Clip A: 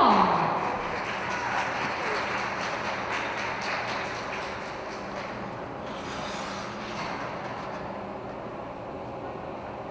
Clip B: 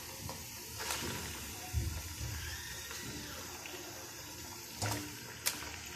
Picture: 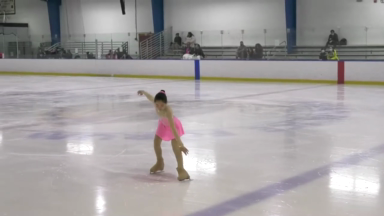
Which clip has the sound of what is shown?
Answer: A